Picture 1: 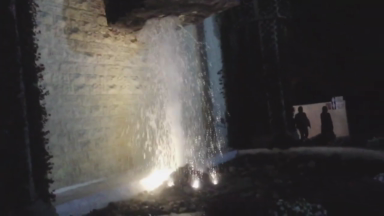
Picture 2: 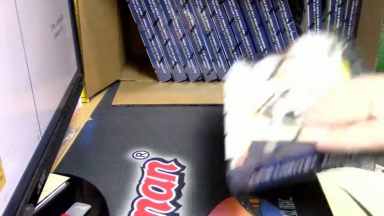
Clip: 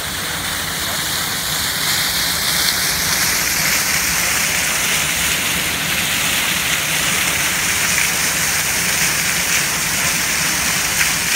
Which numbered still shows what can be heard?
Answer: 1